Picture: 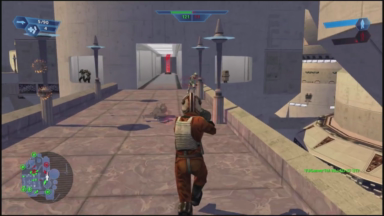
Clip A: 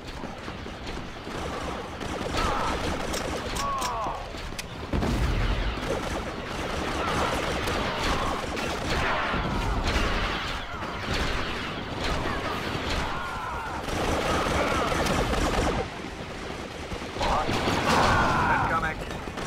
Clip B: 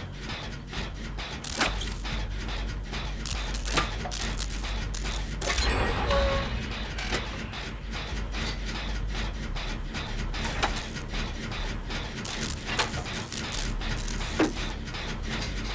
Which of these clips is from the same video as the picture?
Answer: A